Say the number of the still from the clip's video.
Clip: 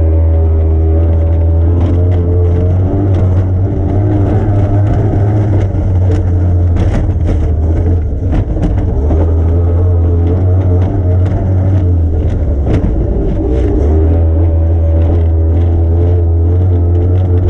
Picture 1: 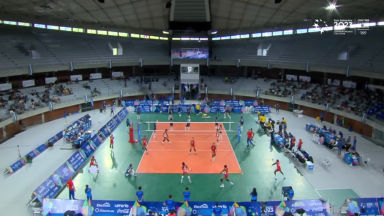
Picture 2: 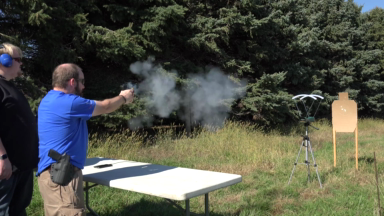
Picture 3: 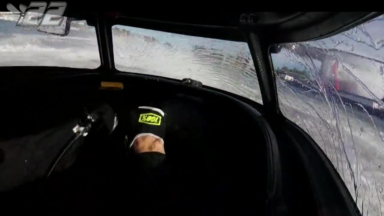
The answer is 3